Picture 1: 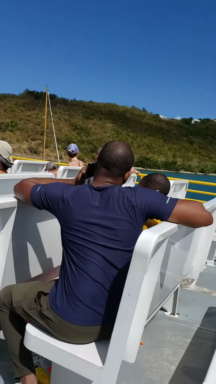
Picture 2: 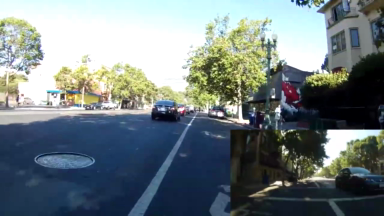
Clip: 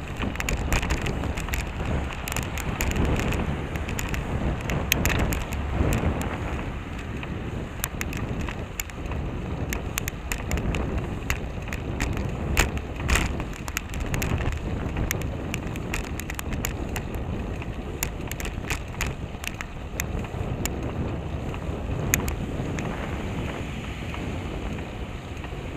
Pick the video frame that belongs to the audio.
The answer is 2